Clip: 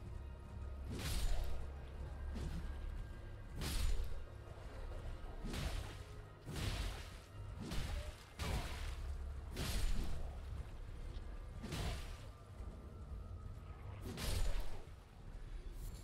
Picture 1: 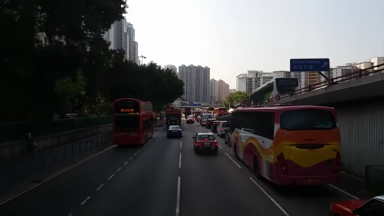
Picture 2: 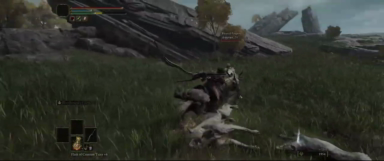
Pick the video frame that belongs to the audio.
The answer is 2